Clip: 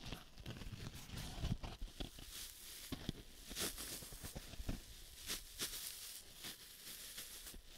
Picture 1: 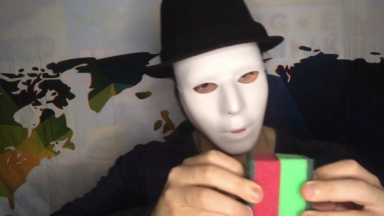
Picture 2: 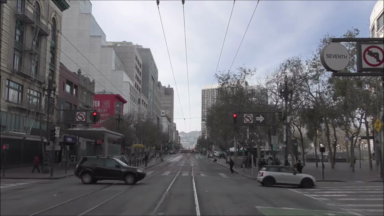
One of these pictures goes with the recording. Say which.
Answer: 1